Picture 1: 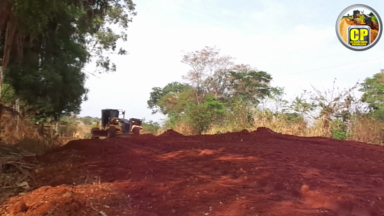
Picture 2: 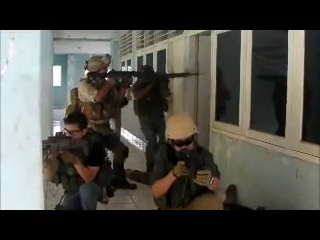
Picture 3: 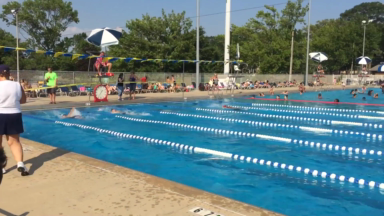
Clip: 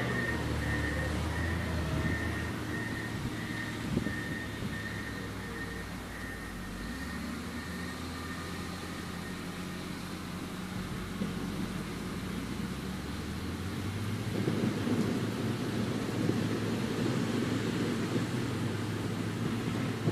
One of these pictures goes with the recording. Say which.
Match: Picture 1